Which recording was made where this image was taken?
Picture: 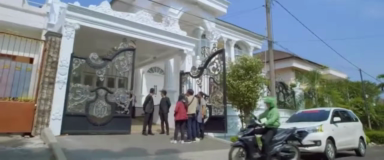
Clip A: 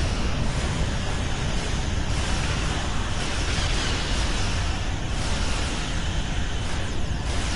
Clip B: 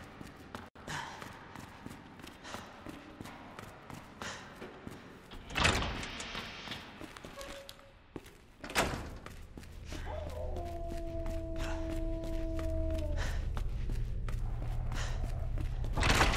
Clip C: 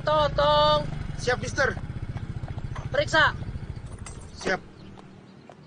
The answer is C